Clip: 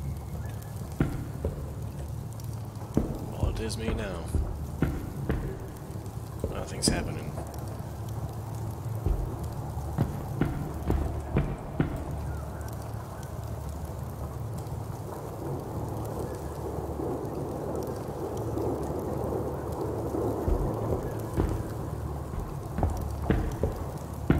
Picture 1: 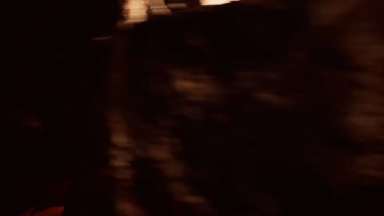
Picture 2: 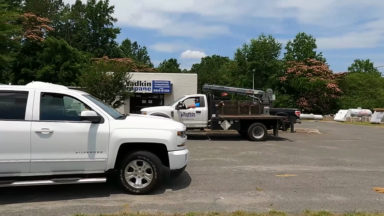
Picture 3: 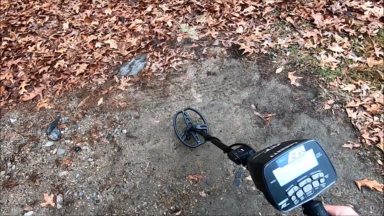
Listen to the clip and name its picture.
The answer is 1